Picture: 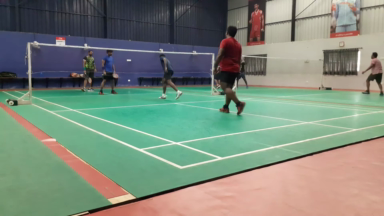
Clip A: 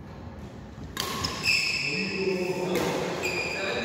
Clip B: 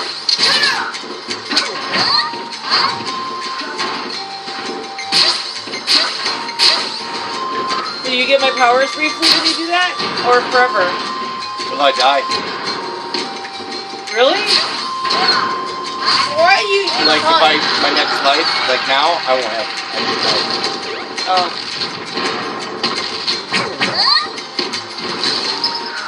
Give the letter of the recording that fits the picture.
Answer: A